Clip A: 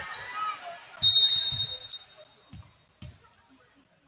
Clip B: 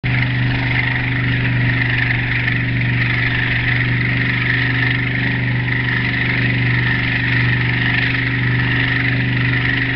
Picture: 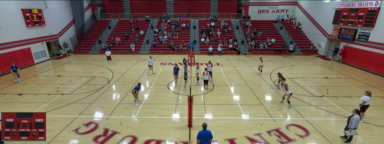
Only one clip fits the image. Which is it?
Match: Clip A